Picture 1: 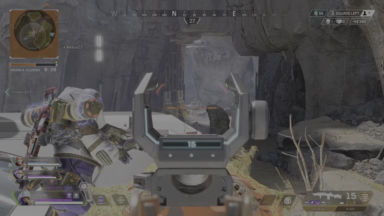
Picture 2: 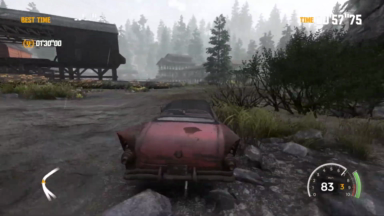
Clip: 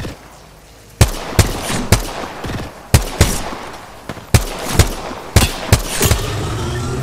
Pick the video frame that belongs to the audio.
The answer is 1